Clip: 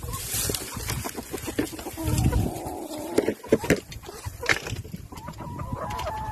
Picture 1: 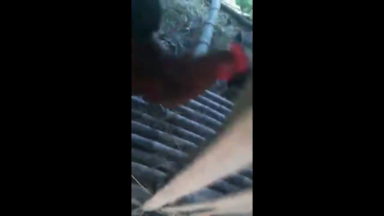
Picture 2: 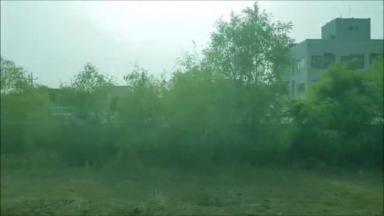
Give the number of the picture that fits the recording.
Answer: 1